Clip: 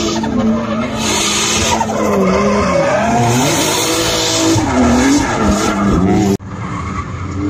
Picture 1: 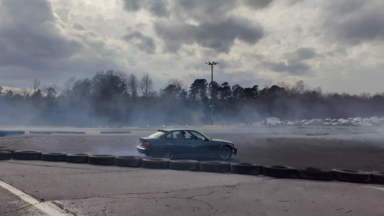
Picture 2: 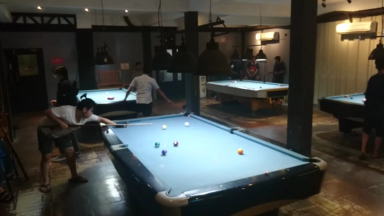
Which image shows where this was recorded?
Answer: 1